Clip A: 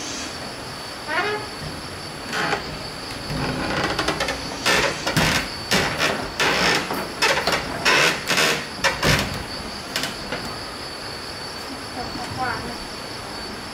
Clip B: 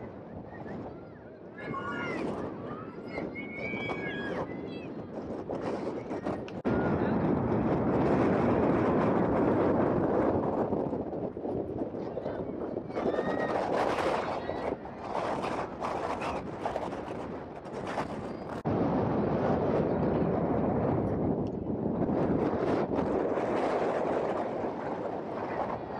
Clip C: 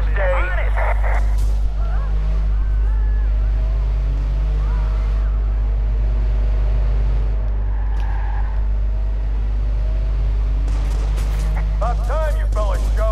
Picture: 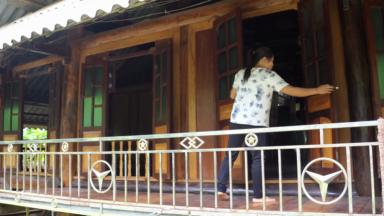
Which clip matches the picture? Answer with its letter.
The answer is A